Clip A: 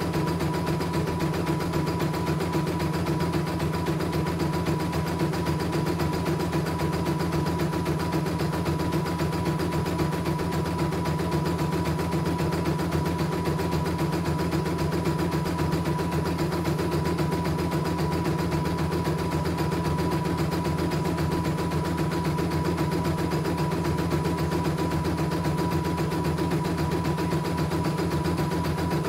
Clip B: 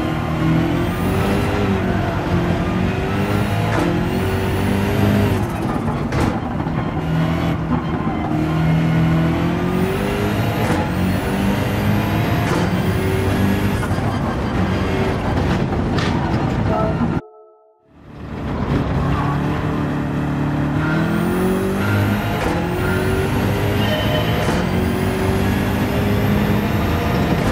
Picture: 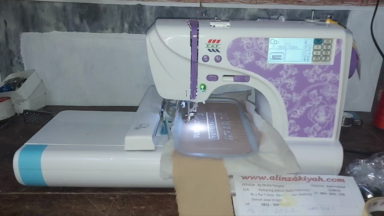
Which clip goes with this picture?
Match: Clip A